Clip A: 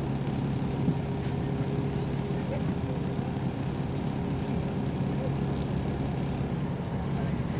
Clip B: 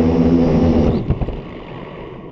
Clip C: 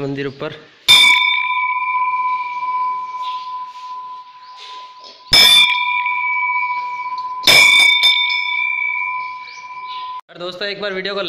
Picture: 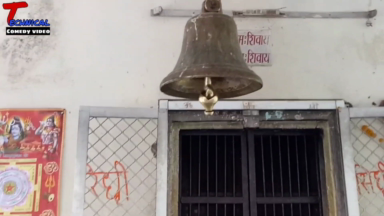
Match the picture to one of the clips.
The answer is C